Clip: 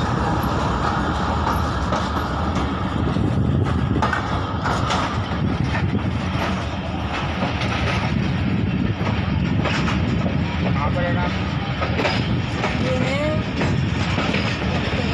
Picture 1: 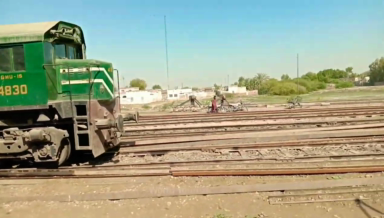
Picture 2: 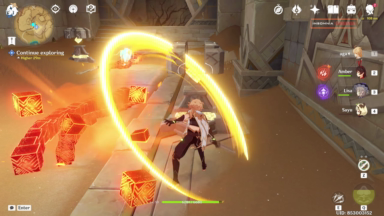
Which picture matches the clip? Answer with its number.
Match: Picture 1